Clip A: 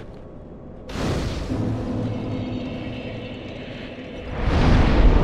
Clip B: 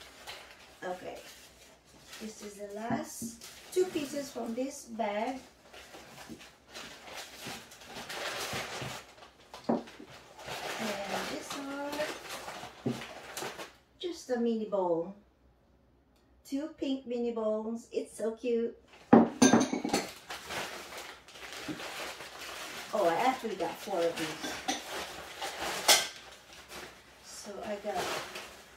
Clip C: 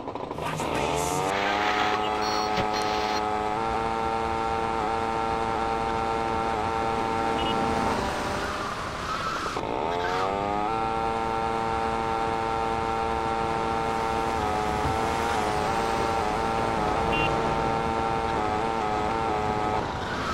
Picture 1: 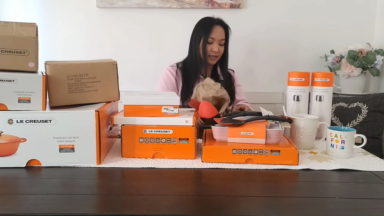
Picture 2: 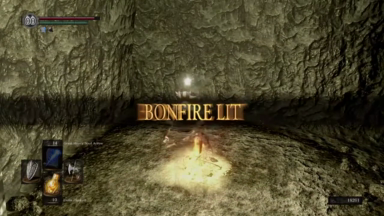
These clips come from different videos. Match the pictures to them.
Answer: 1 B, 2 A